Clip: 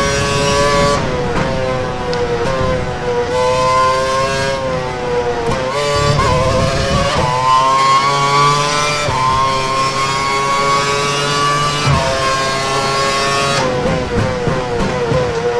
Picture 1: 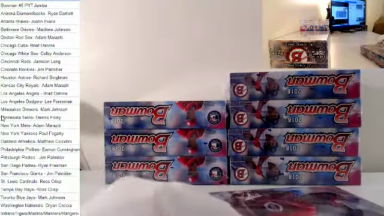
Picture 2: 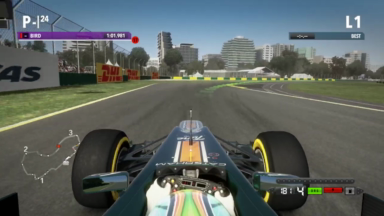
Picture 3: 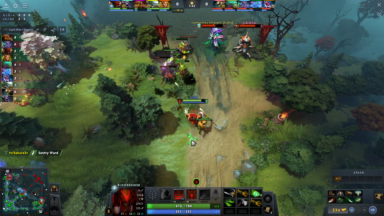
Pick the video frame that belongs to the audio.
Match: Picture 2